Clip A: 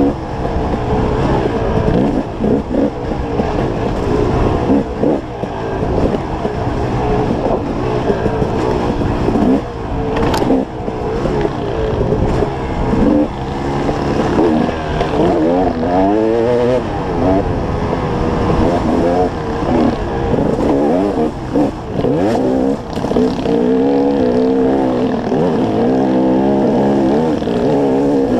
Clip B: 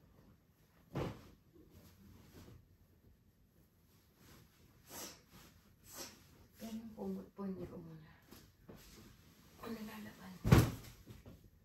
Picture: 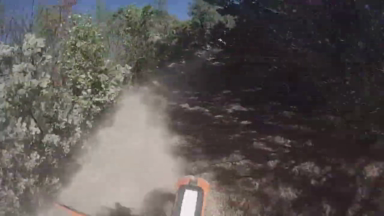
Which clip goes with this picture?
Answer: A